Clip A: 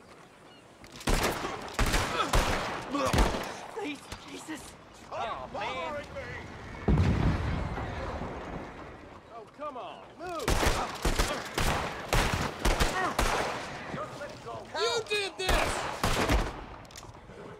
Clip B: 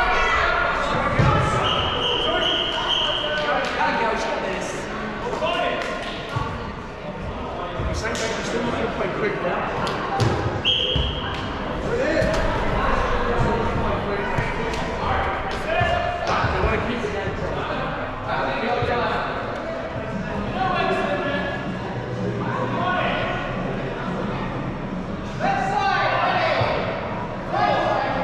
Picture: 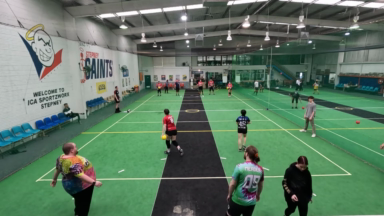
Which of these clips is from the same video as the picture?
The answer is B